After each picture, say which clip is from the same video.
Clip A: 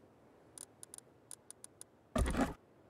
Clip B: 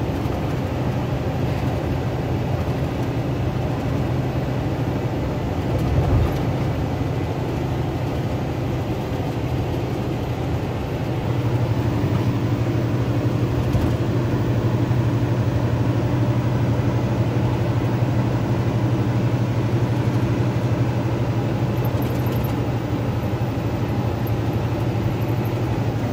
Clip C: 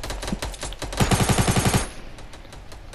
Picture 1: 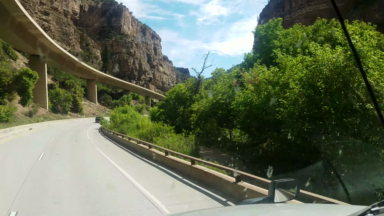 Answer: B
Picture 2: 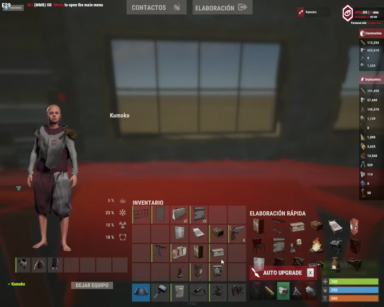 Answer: A